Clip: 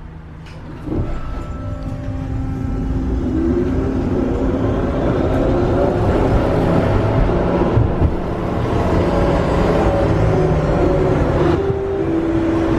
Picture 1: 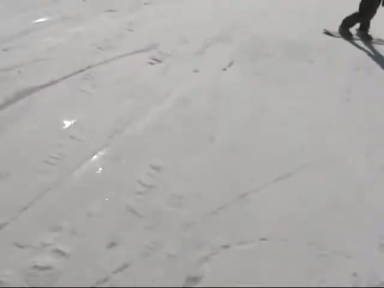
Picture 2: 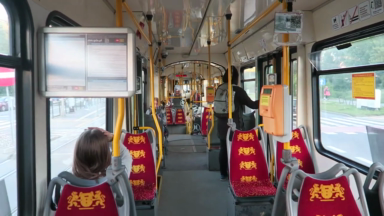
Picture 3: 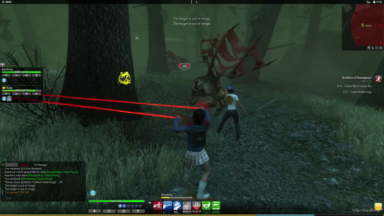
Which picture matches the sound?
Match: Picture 2